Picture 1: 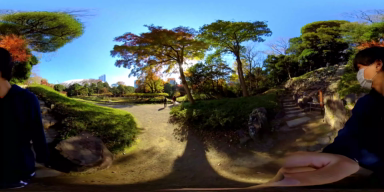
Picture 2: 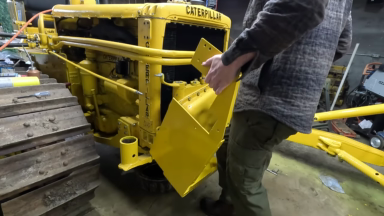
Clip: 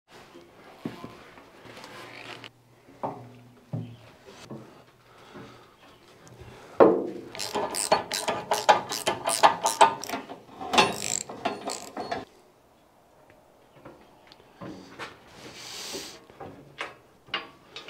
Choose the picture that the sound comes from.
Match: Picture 2